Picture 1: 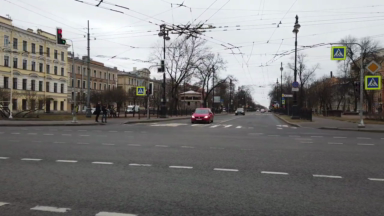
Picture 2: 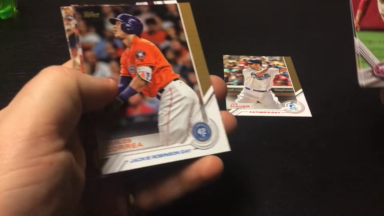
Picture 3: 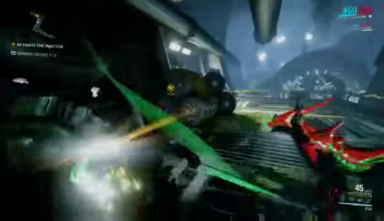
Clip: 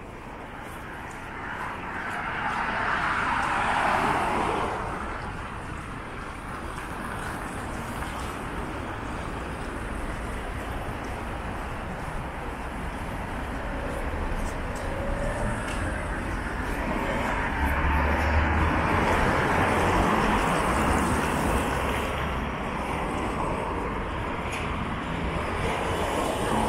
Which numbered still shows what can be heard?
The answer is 1